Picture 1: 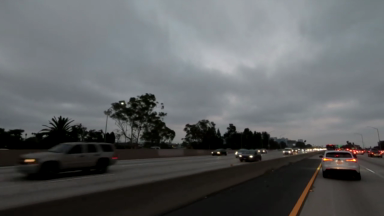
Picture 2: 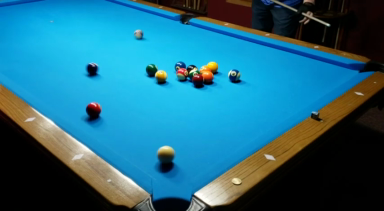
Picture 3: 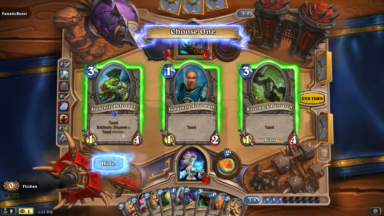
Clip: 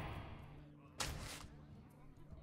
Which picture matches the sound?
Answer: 3